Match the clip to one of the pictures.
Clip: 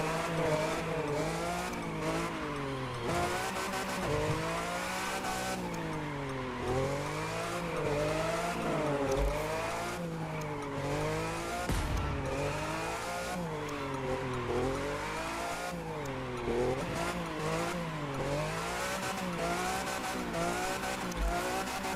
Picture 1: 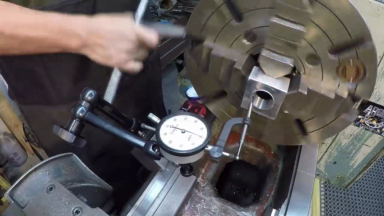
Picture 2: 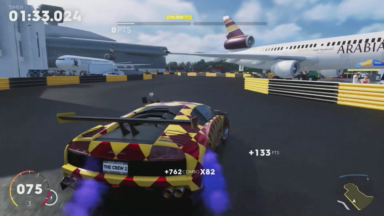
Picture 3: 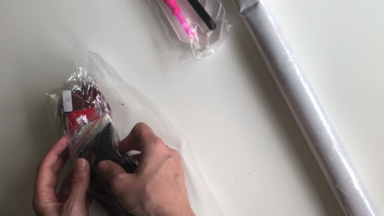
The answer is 2